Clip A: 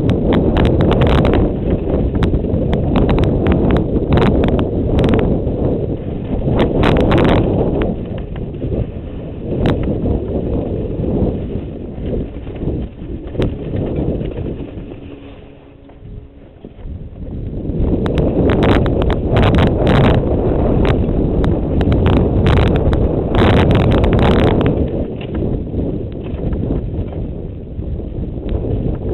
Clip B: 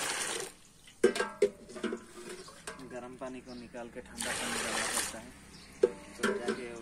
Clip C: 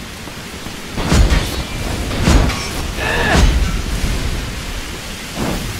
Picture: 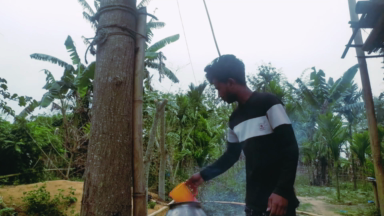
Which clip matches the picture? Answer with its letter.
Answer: B